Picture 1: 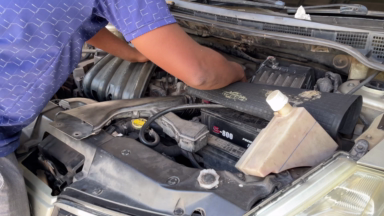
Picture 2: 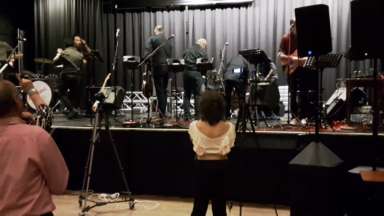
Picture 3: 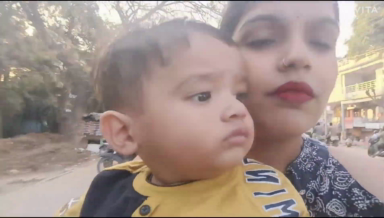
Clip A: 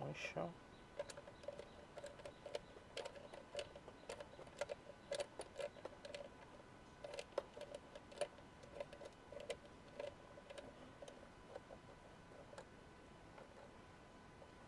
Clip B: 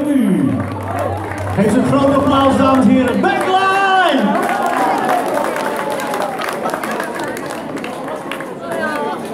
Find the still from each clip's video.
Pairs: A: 1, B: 2